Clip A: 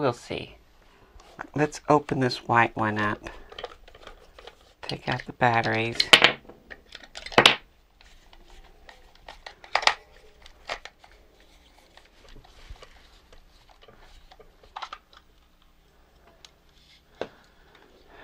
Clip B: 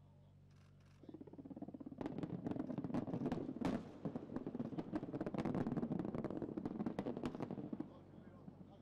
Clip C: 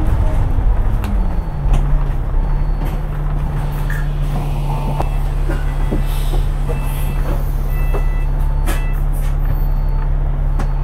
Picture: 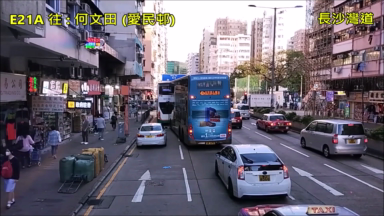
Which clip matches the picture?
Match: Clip C